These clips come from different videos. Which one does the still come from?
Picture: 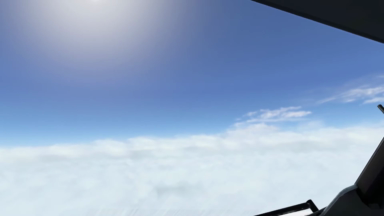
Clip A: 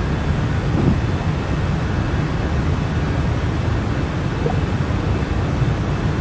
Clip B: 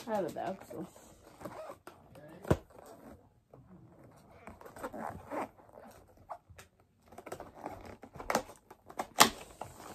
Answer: A